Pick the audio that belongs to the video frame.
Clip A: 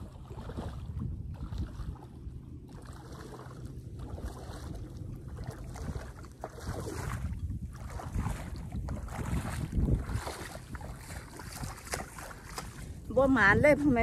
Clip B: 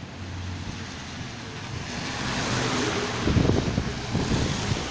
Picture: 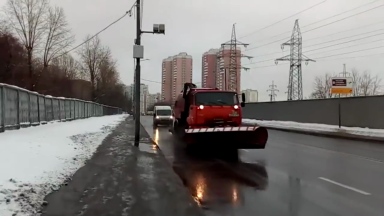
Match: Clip B